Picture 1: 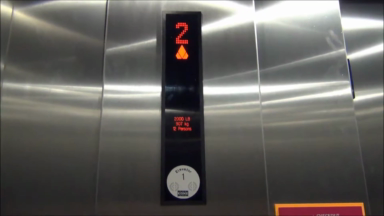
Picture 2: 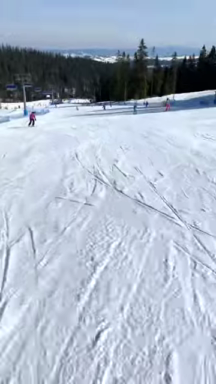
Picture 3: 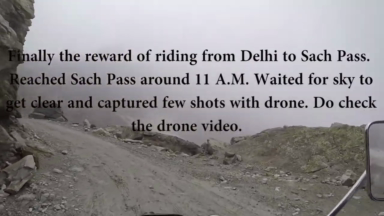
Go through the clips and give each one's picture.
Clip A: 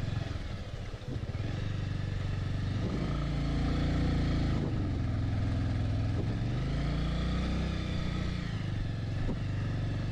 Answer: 3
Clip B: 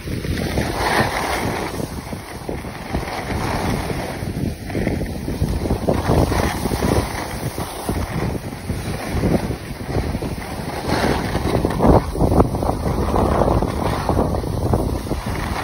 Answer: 2